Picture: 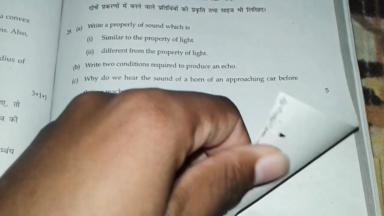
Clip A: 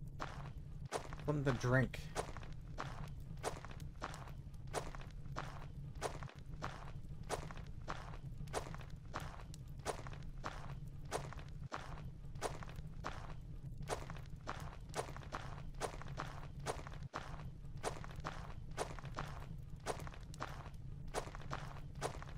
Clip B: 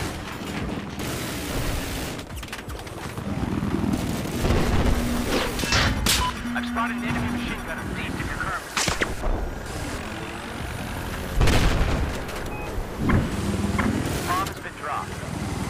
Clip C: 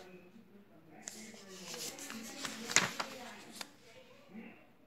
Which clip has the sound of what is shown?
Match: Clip C